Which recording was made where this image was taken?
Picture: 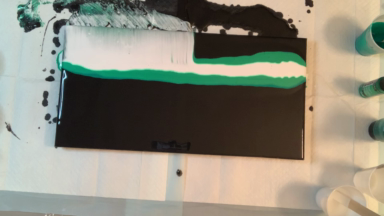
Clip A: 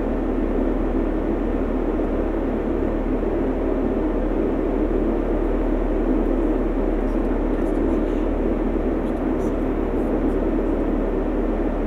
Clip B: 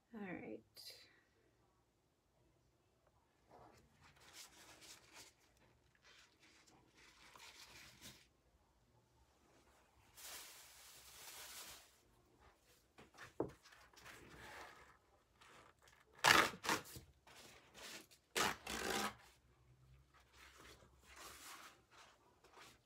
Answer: B